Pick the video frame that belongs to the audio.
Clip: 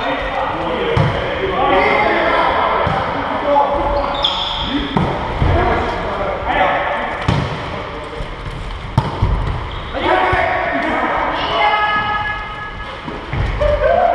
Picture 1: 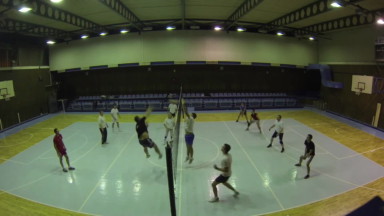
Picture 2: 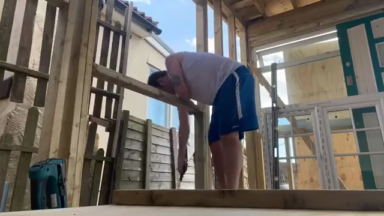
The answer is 1